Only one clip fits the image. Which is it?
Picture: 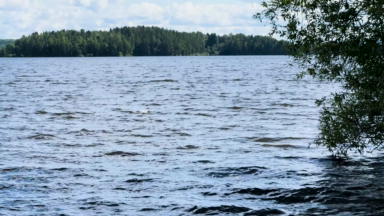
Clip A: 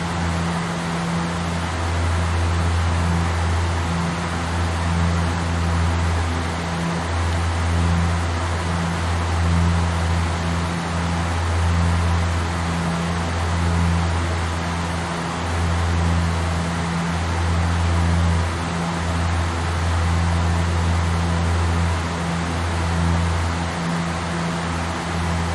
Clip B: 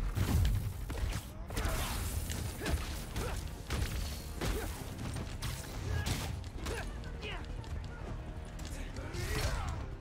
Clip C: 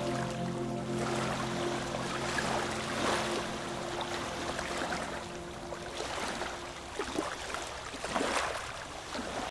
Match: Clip C